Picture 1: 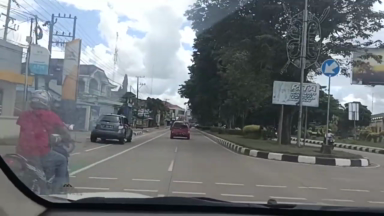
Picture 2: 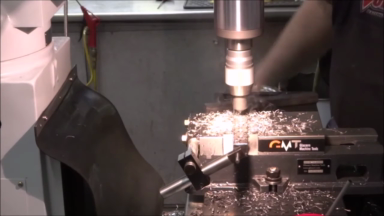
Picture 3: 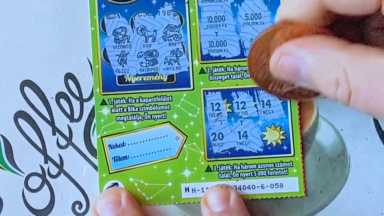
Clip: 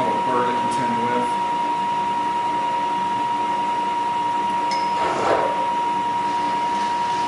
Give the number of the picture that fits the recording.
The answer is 2